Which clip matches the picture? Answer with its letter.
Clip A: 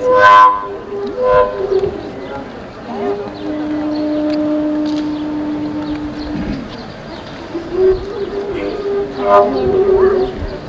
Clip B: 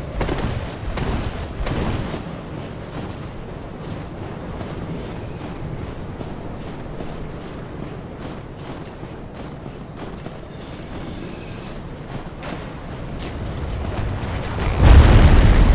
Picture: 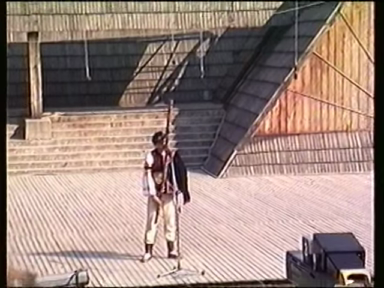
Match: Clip A